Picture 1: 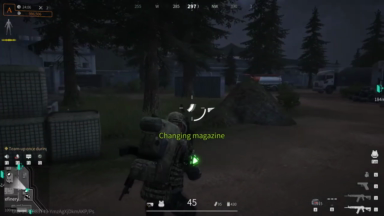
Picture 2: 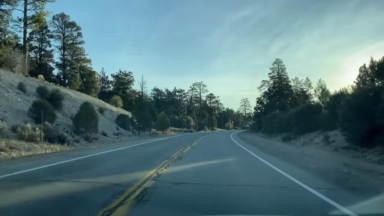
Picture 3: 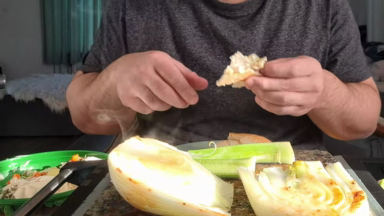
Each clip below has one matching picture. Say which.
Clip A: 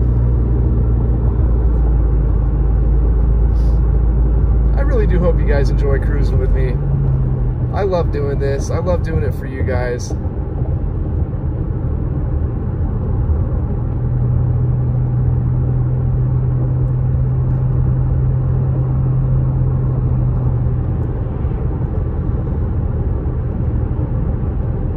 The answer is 2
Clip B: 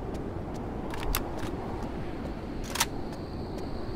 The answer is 1